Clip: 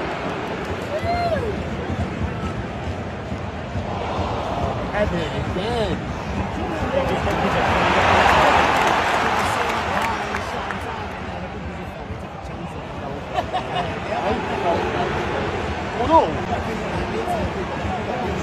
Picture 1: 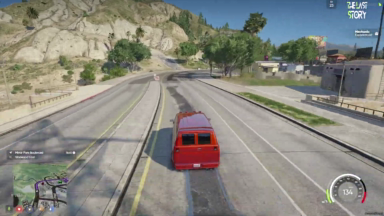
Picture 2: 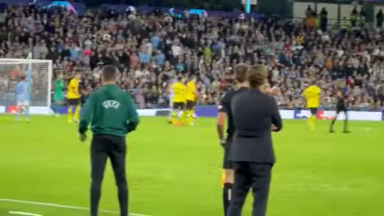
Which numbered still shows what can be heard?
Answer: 2